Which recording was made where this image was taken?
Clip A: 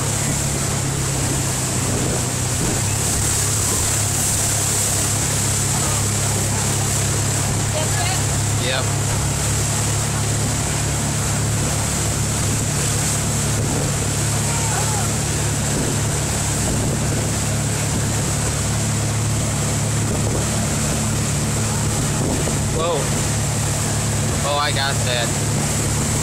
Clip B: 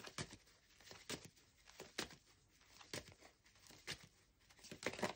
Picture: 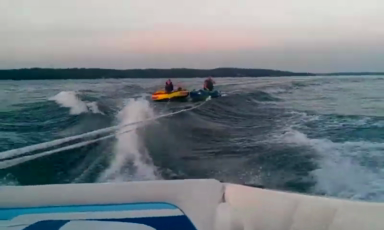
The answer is A